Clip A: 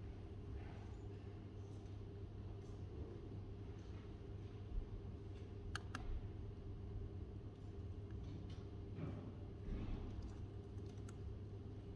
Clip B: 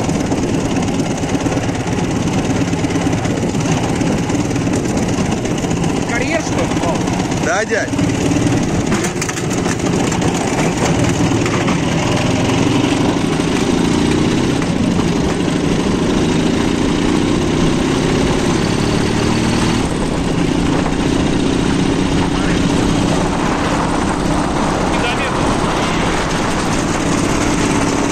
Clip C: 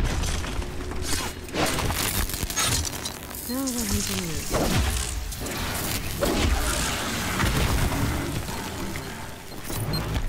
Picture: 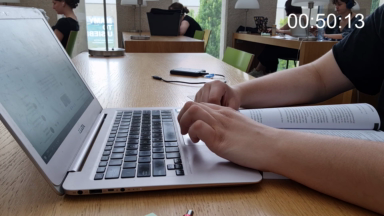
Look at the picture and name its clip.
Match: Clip A